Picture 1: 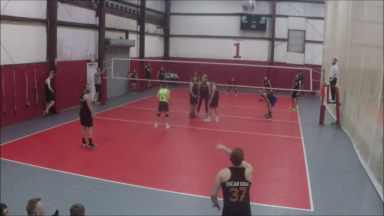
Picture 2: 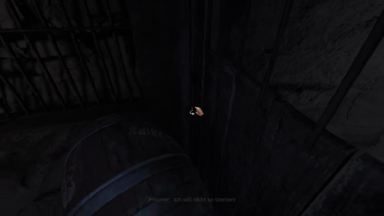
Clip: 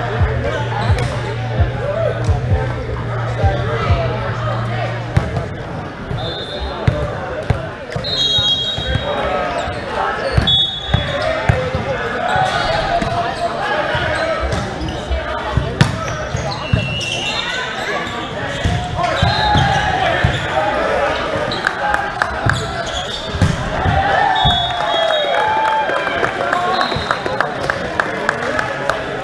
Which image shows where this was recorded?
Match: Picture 1